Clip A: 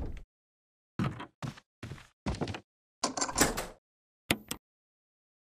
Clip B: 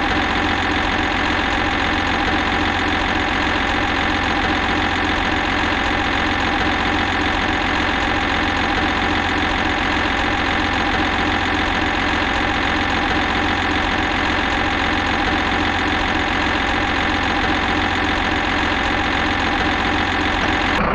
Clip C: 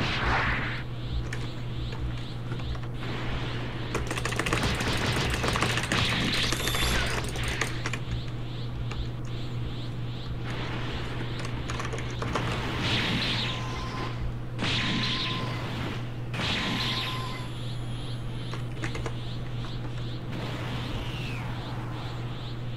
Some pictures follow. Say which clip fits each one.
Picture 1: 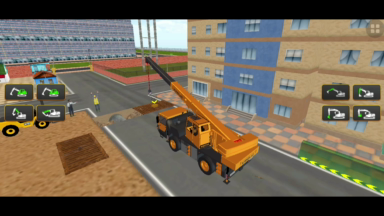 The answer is B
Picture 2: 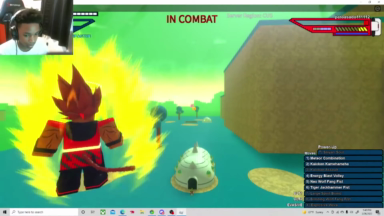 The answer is C